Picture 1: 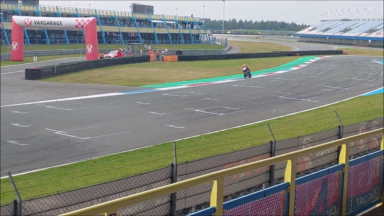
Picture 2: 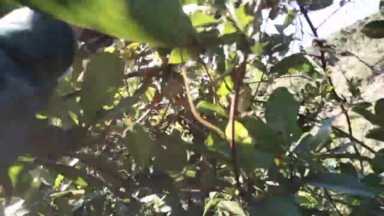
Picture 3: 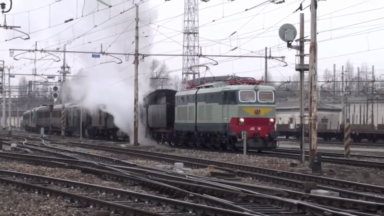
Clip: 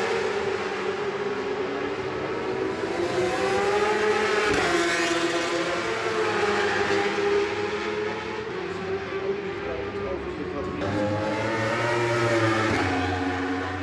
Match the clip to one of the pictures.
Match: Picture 1